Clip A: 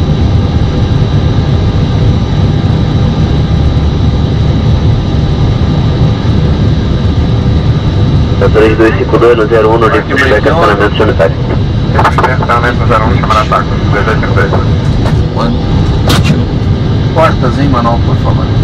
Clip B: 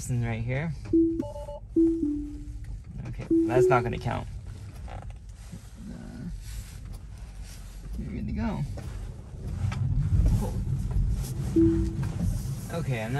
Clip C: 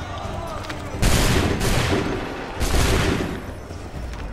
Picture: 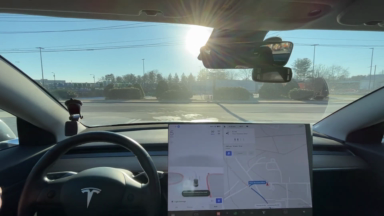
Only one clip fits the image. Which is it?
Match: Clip B